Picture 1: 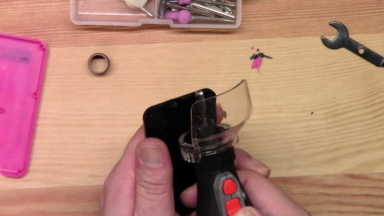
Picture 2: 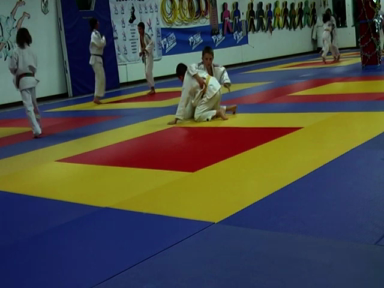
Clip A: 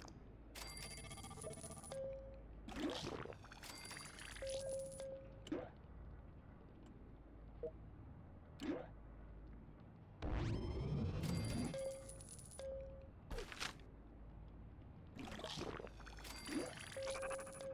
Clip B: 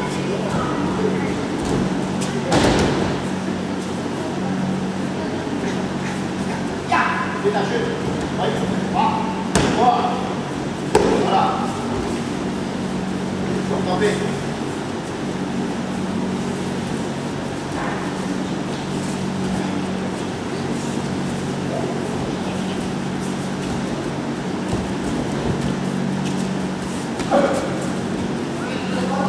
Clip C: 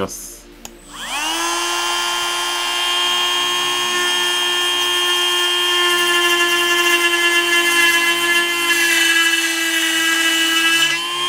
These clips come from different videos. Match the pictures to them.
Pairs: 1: C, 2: B